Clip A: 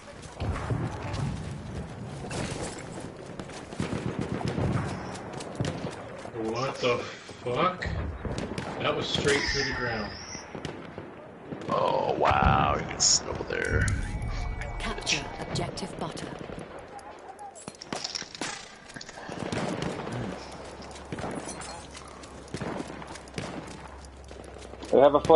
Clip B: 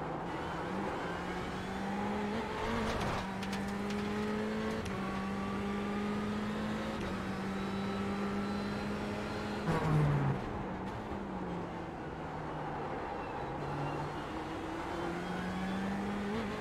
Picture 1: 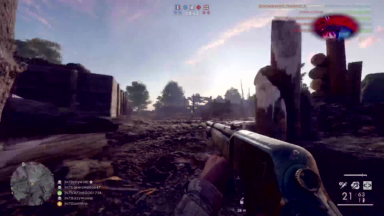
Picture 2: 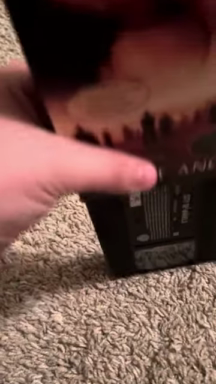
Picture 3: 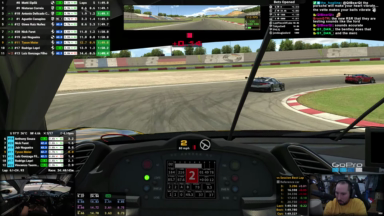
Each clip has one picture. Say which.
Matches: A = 1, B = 3